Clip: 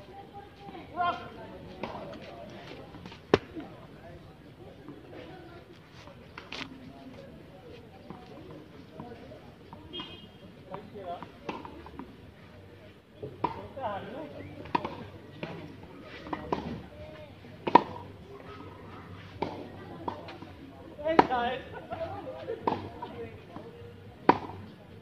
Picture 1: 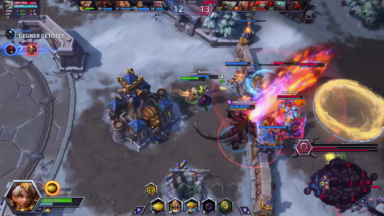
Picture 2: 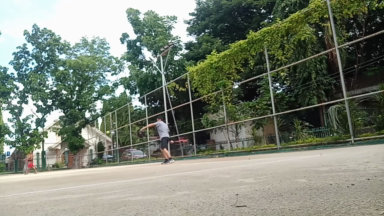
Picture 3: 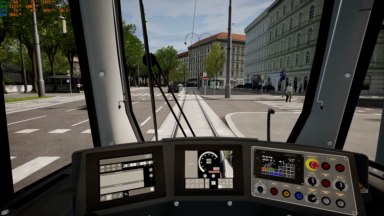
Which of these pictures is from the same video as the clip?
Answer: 2